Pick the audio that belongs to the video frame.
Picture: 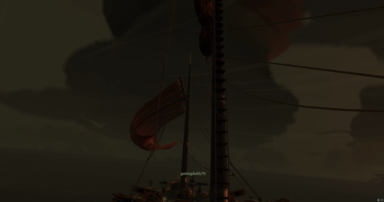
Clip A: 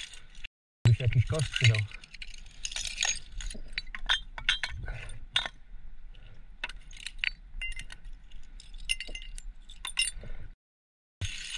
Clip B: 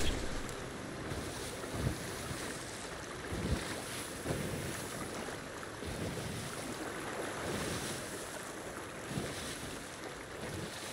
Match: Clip B